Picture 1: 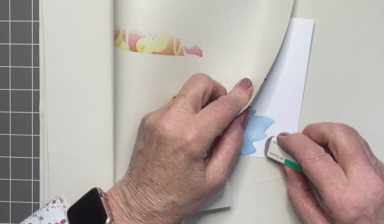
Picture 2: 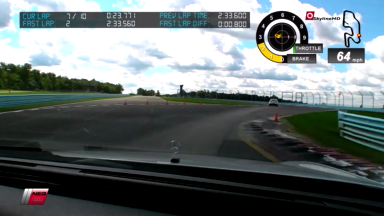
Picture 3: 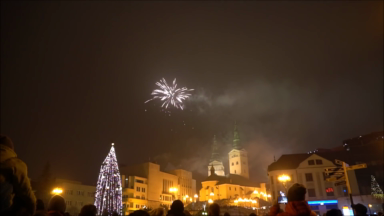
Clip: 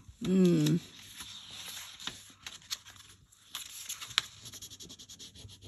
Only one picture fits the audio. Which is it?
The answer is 1